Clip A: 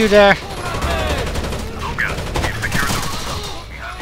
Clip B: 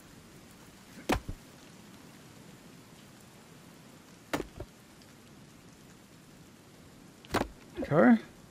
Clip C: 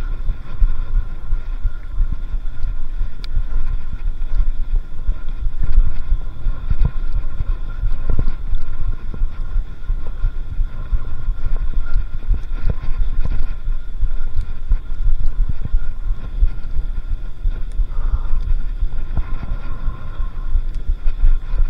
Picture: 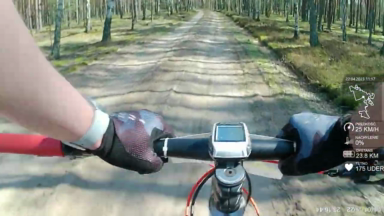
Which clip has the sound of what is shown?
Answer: C